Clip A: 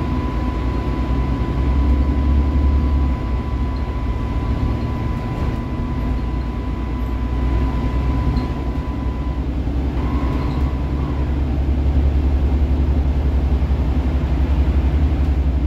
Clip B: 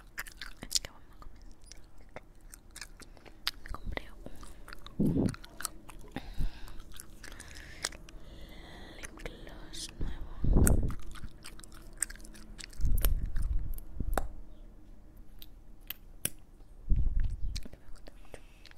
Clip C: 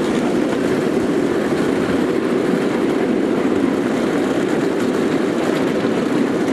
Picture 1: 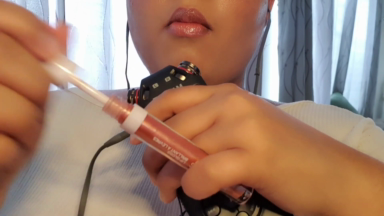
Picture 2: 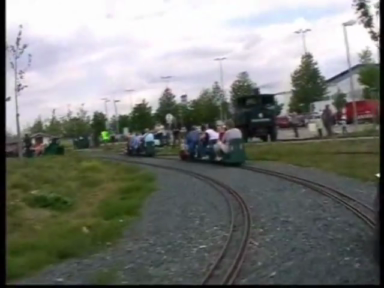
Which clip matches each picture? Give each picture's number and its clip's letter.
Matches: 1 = B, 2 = C